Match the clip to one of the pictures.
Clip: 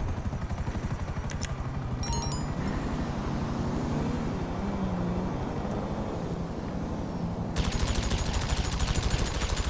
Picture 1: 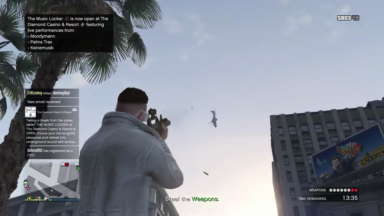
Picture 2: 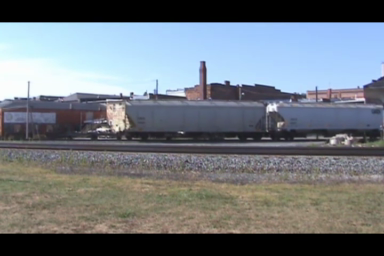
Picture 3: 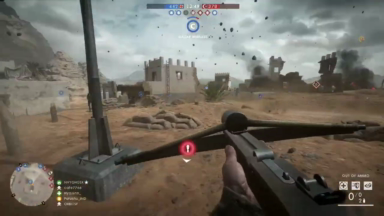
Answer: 1